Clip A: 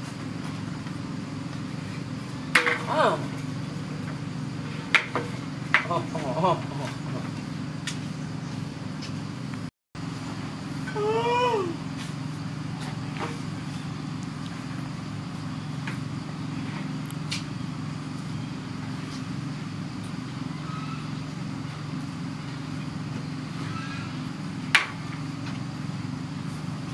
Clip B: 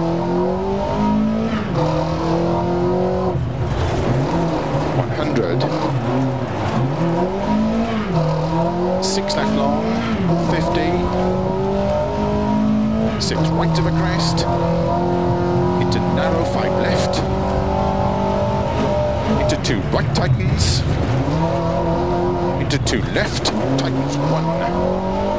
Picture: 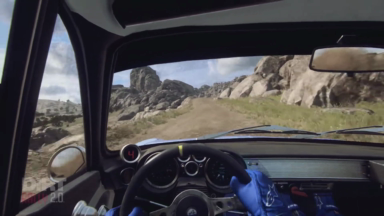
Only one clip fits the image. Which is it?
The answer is B